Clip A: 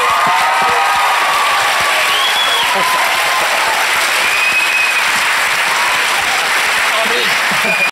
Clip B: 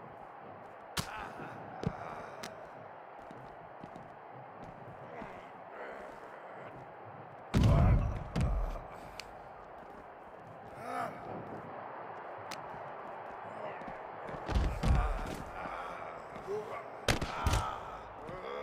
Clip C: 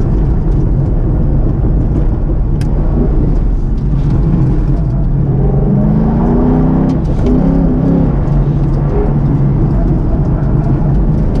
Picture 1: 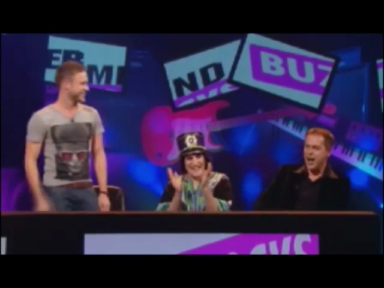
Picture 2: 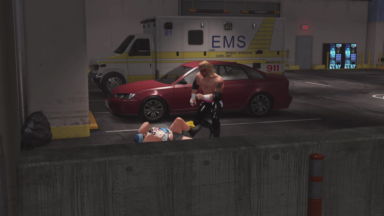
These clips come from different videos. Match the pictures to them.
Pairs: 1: A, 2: B